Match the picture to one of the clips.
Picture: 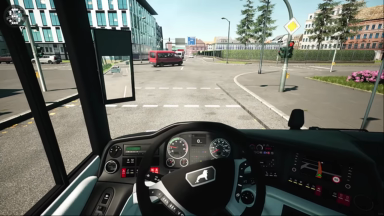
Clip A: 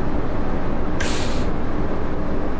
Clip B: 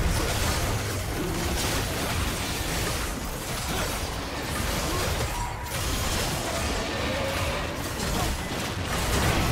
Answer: A